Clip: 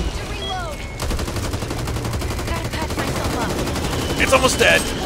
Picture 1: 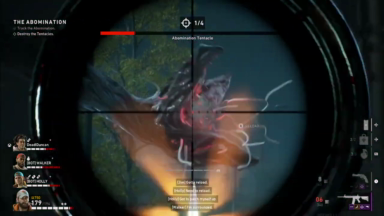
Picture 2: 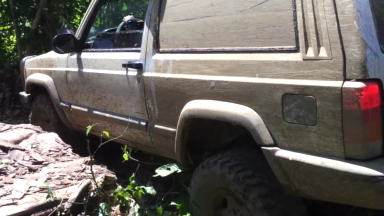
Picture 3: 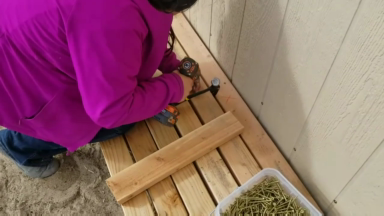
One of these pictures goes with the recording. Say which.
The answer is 1